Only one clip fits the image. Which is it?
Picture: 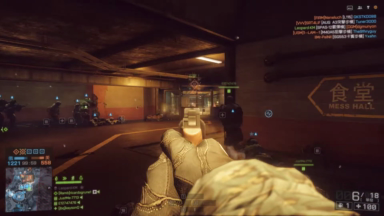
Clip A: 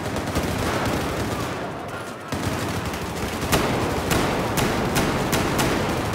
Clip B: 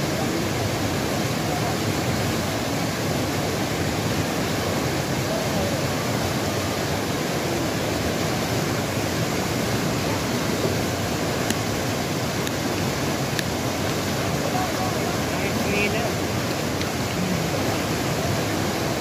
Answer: A